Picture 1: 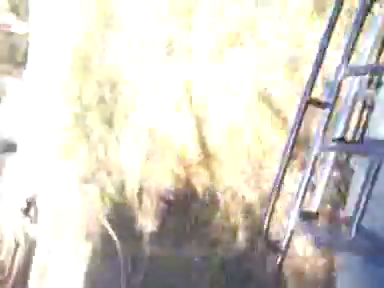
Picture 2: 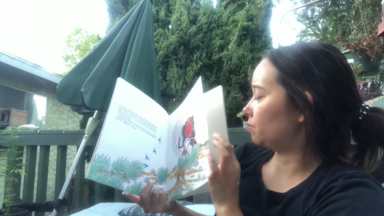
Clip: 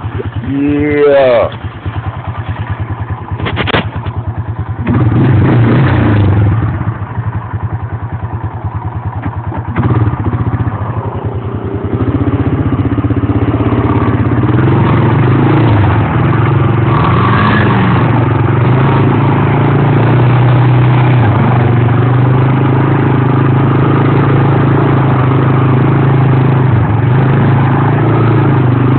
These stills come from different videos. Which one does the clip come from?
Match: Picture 1